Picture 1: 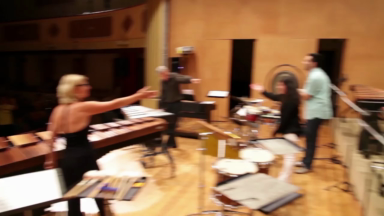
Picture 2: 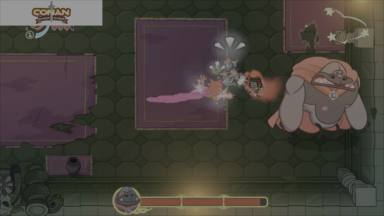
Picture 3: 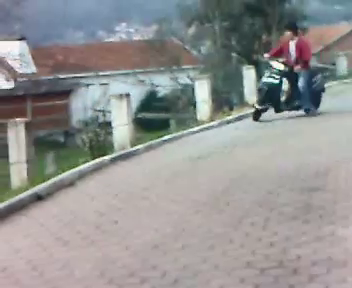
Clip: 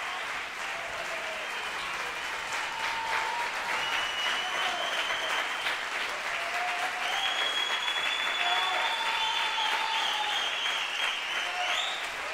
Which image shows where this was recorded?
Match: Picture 1